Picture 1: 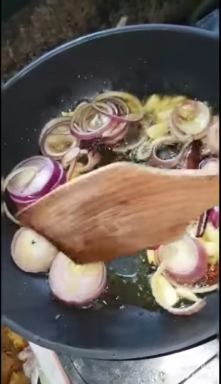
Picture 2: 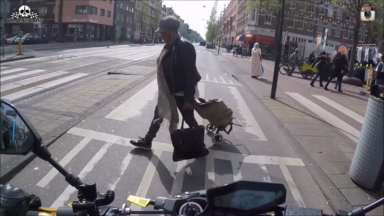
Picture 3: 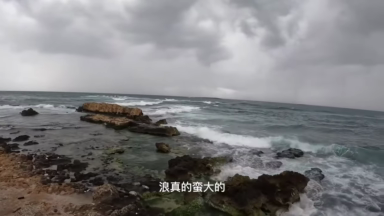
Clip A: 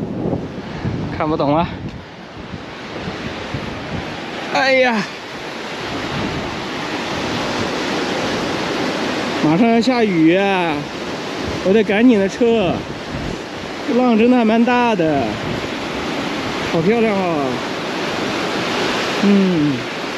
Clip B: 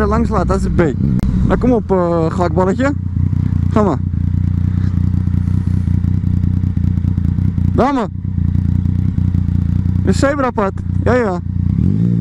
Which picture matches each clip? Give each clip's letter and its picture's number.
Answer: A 3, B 2